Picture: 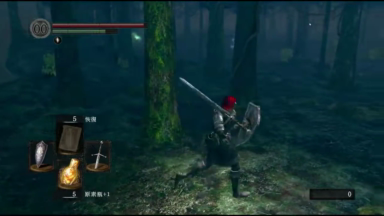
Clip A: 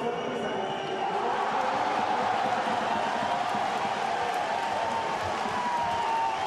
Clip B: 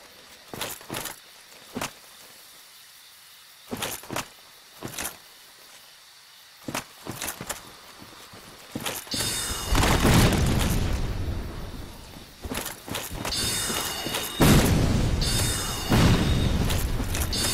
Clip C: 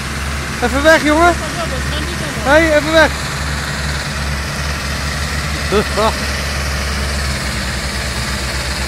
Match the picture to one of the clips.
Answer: B